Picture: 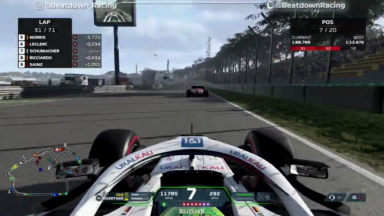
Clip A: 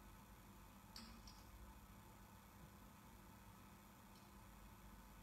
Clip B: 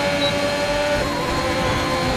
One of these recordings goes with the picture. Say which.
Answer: B